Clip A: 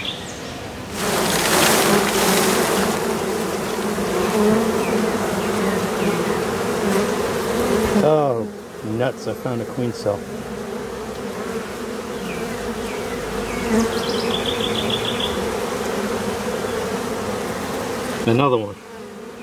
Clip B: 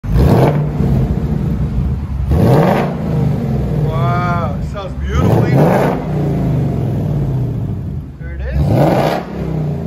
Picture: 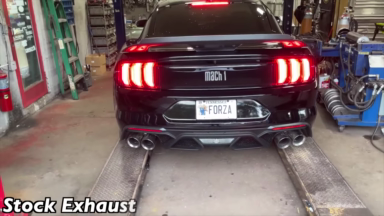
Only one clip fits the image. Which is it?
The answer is B